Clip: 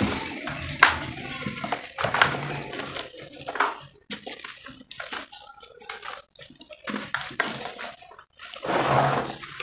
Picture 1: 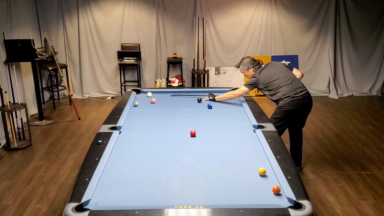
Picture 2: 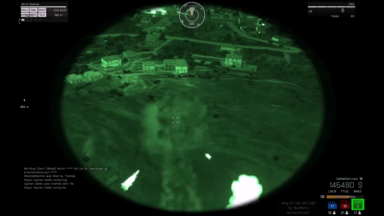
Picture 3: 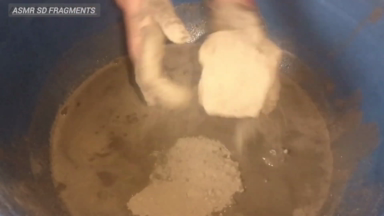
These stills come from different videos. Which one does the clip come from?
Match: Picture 3